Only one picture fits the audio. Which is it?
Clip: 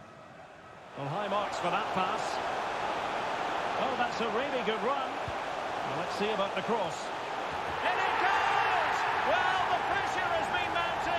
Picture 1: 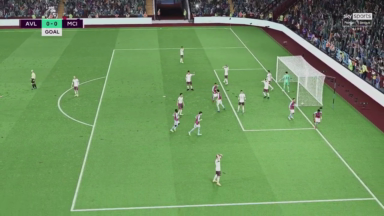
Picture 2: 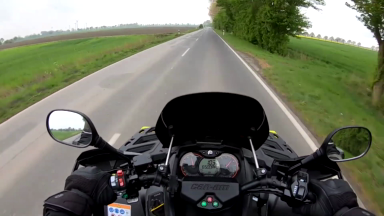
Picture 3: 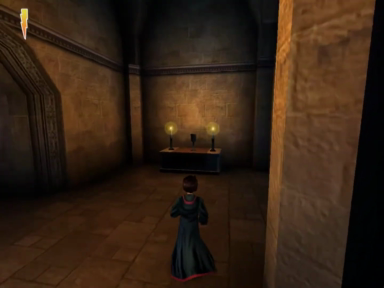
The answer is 1